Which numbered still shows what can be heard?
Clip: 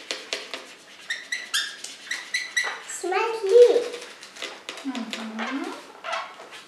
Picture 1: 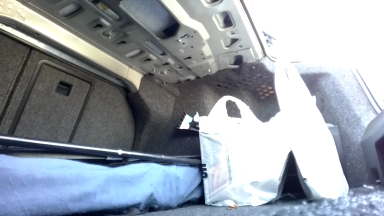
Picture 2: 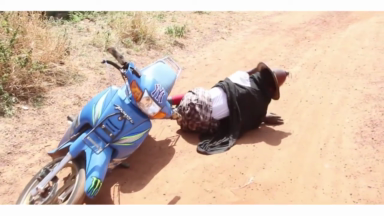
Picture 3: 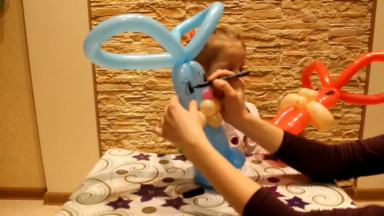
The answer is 3